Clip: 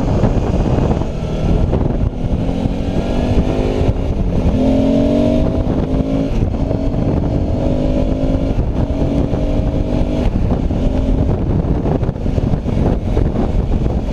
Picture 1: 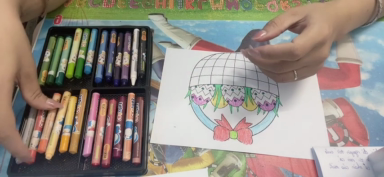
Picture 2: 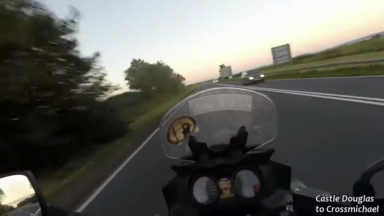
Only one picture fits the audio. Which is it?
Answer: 2